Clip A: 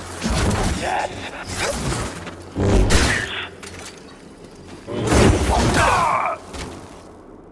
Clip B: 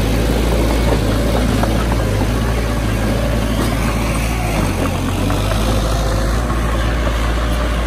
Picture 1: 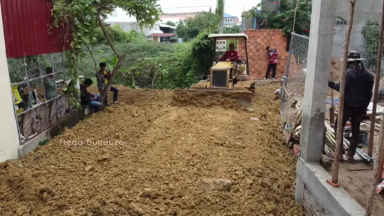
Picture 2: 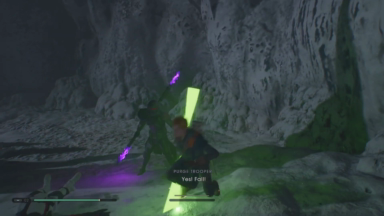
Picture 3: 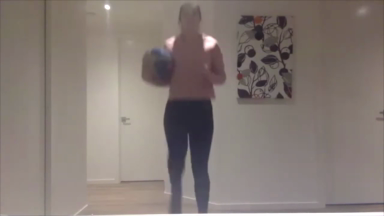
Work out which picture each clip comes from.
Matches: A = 2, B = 1